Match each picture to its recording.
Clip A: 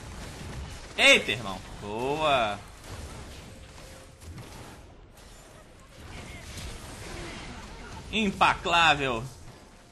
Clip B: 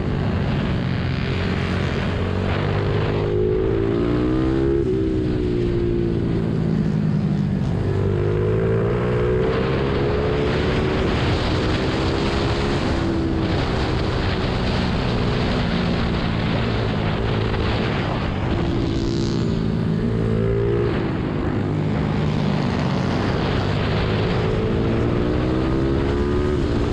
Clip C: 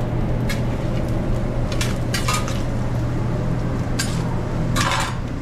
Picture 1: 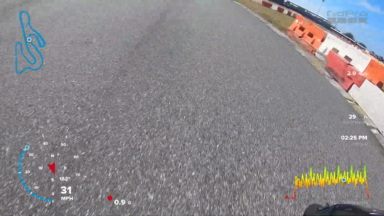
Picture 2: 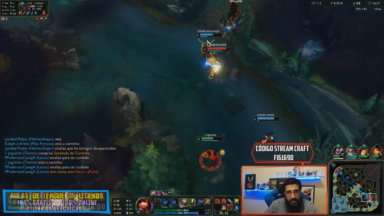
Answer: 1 B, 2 A